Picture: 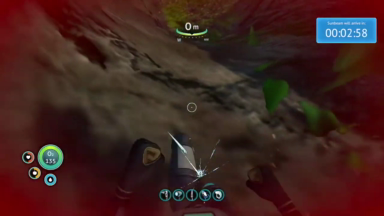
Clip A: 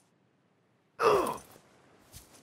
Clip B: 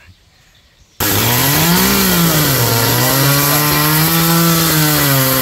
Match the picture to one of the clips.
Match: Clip A